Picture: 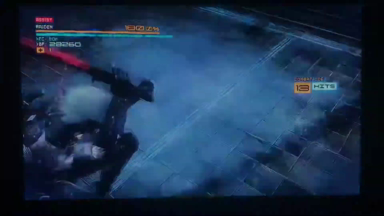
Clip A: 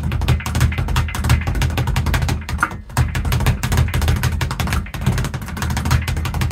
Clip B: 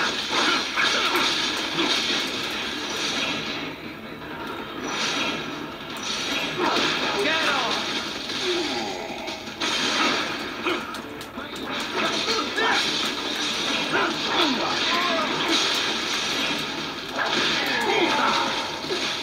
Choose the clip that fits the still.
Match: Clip B